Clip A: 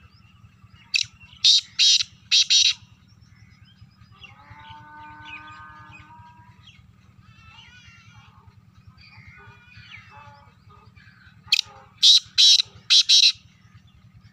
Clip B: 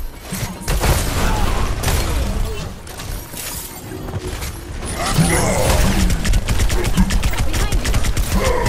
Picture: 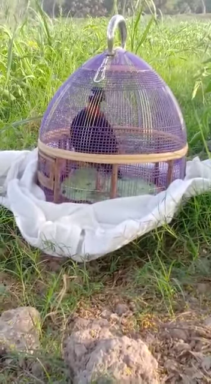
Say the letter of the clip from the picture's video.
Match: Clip A